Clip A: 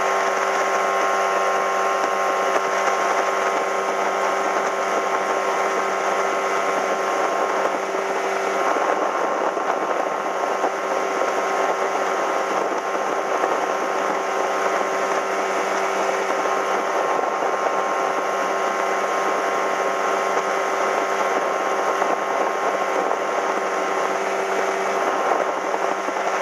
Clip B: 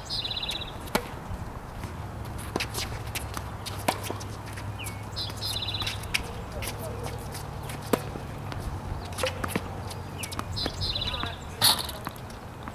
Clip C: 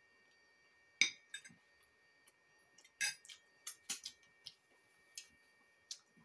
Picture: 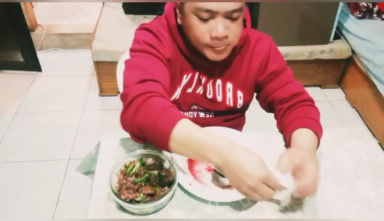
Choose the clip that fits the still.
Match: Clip C